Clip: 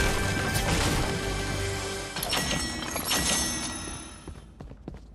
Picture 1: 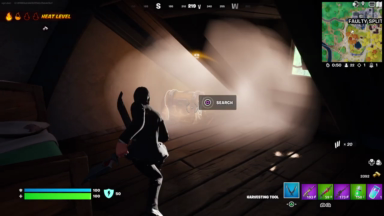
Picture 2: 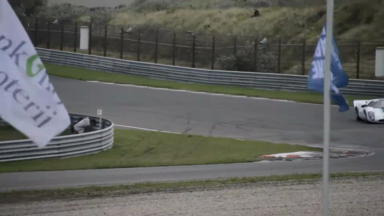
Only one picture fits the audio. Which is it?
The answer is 1